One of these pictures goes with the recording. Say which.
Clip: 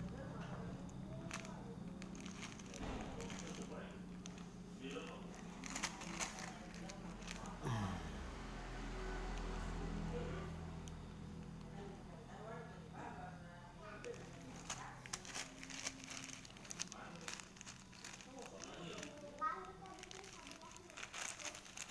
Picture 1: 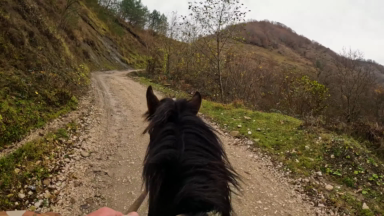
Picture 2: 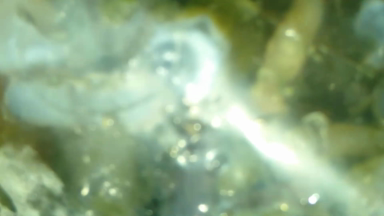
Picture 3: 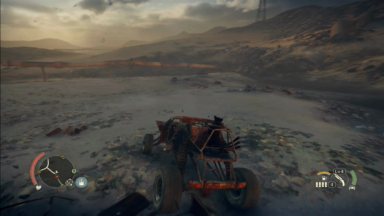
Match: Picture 2